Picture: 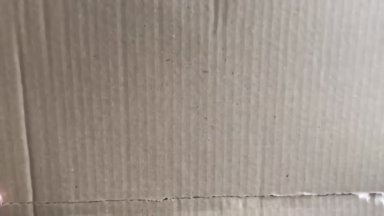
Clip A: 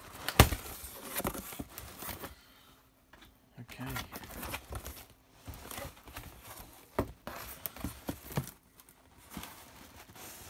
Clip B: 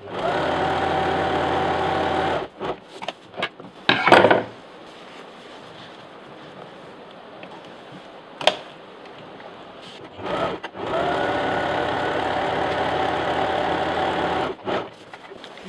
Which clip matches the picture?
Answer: A